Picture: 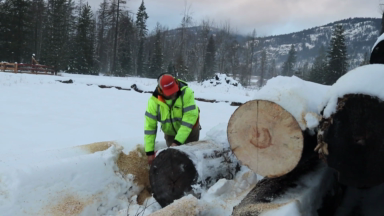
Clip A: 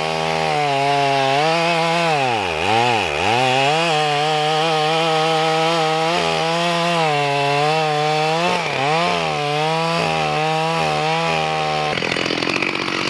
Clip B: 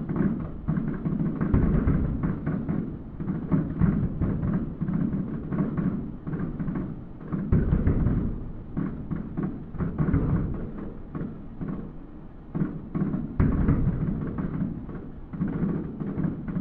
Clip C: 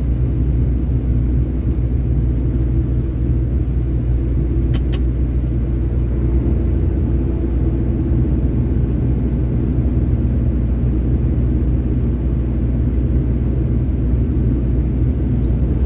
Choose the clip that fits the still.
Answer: A